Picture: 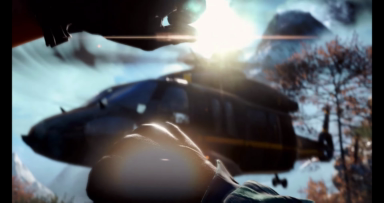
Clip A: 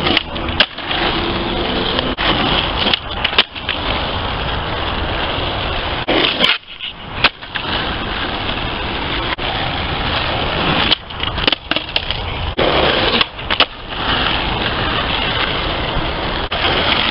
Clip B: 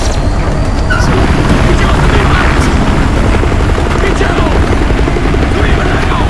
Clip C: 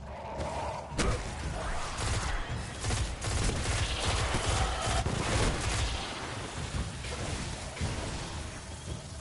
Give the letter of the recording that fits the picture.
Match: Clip B